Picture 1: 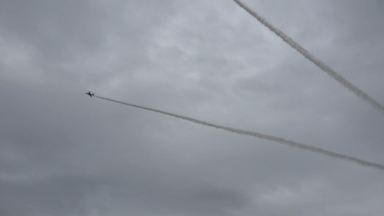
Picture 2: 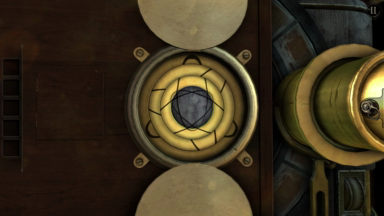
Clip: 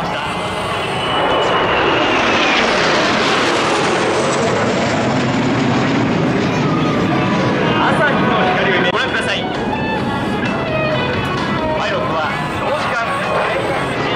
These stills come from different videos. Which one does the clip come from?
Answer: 1